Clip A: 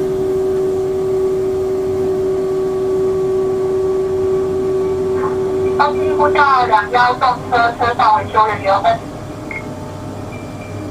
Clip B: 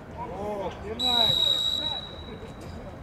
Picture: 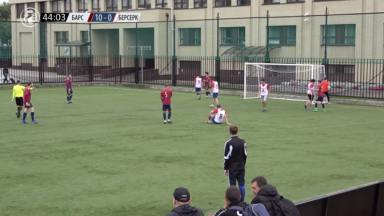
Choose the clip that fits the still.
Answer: B